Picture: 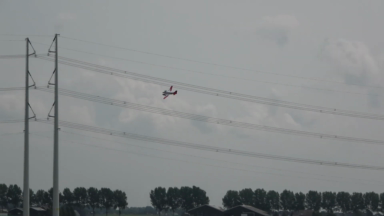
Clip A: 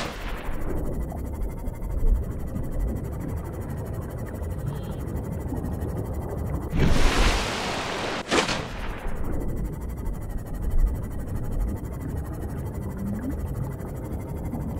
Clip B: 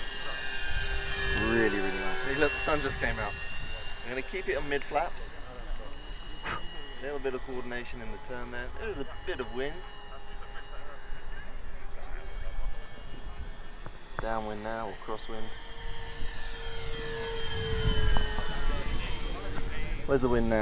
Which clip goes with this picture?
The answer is B